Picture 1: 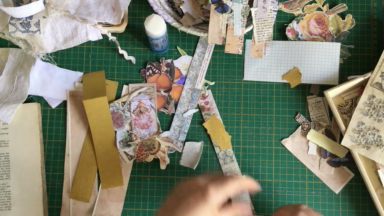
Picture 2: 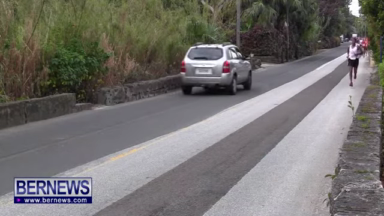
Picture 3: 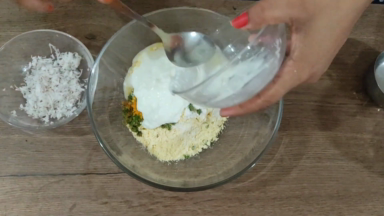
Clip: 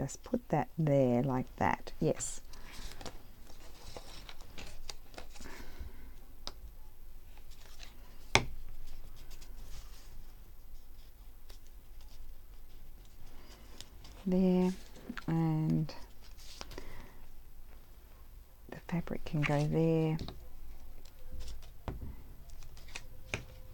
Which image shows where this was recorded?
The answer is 1